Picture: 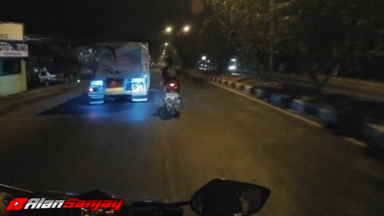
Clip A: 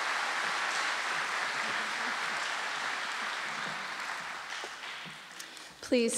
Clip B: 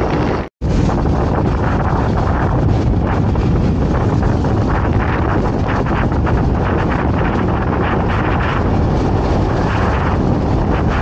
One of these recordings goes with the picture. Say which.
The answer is B